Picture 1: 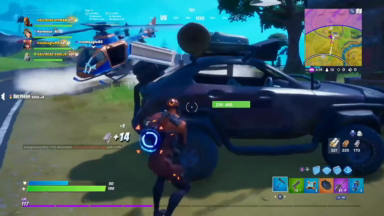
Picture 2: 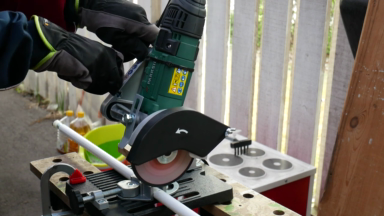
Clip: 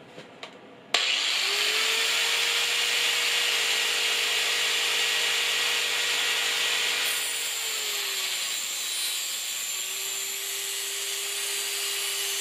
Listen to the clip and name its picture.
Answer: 2